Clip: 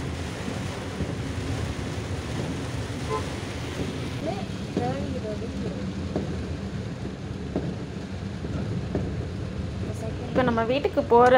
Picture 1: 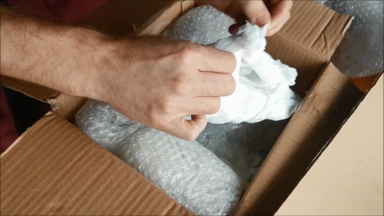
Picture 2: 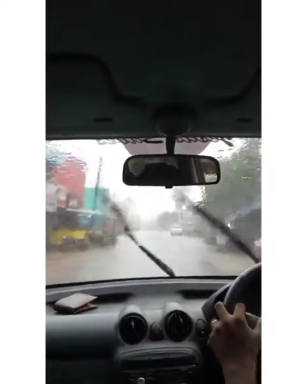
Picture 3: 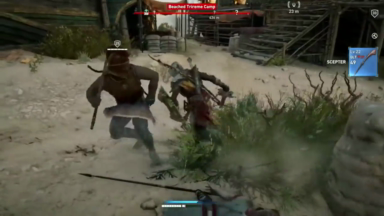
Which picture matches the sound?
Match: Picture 2